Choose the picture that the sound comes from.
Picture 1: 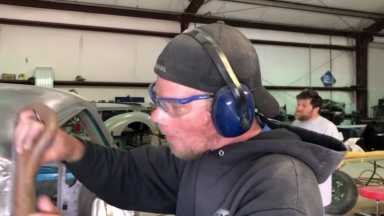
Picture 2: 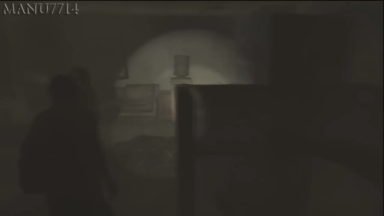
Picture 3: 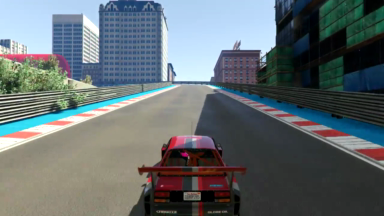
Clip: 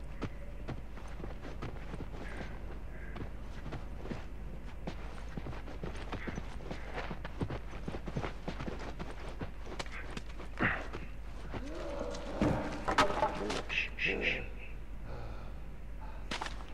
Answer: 2